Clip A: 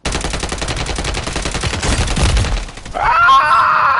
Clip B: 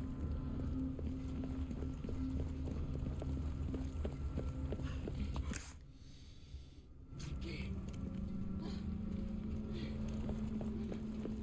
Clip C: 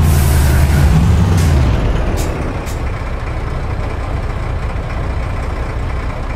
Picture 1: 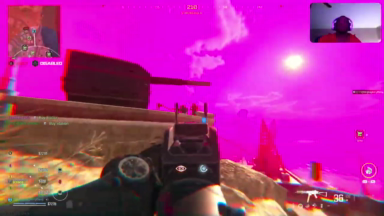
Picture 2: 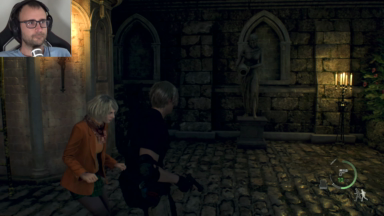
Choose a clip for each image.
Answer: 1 A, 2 B